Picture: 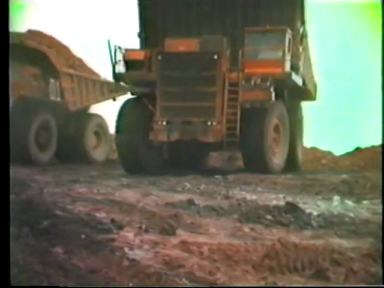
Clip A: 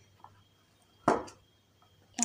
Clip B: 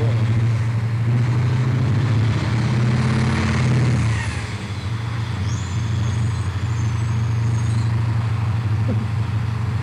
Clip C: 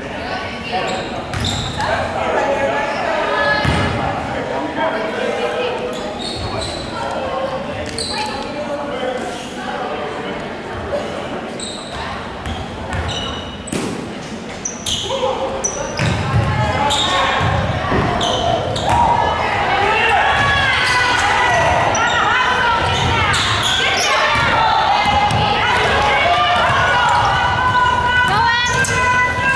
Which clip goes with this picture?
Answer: B